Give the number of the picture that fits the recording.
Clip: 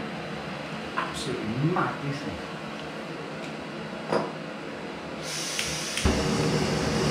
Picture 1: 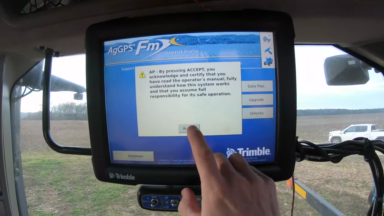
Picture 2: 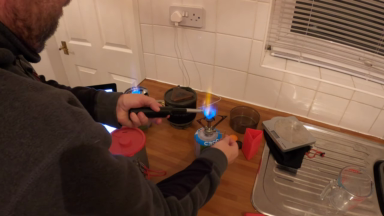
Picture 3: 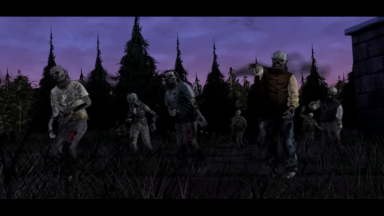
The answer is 2